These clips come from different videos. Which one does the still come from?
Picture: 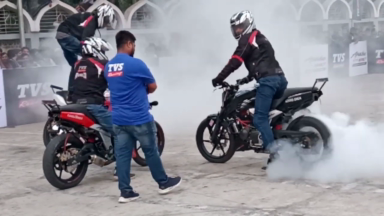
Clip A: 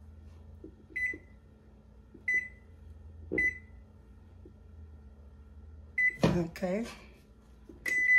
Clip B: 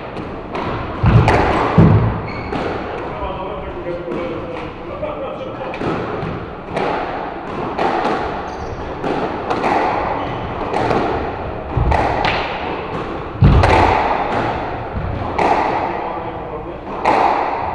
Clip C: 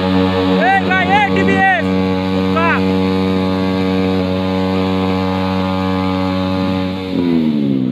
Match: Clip C